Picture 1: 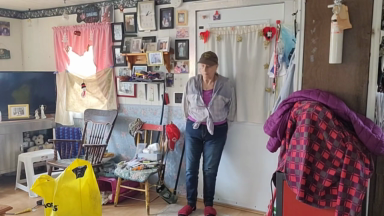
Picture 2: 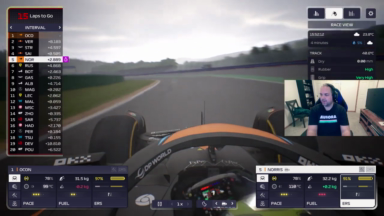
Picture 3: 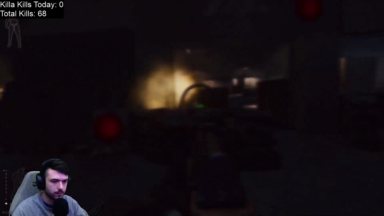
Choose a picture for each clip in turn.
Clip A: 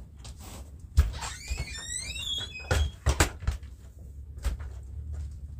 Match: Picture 1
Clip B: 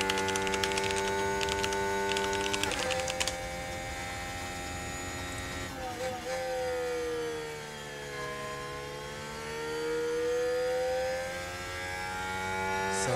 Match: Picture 2